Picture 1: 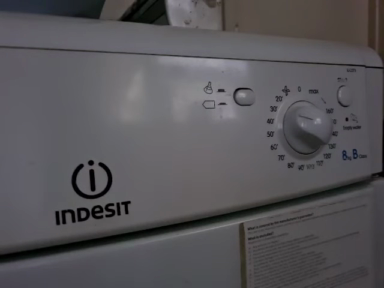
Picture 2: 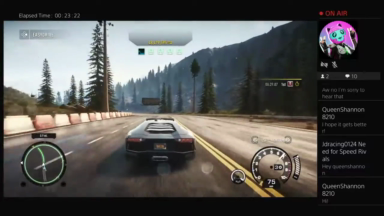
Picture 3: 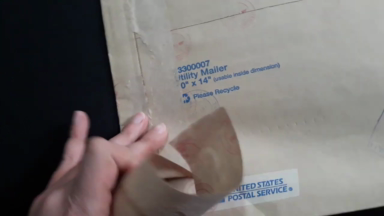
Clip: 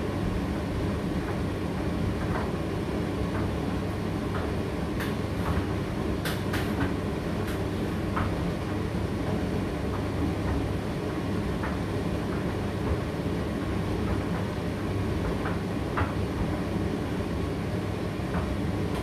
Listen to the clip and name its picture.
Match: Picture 1